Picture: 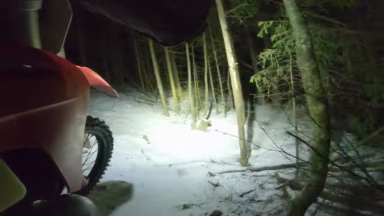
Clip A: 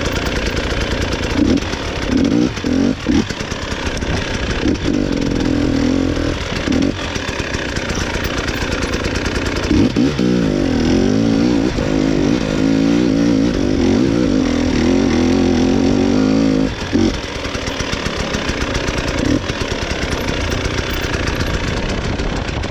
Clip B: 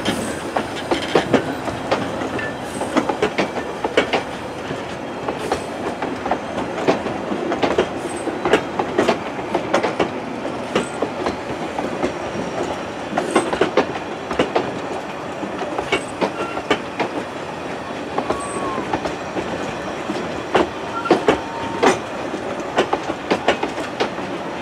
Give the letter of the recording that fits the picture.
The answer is A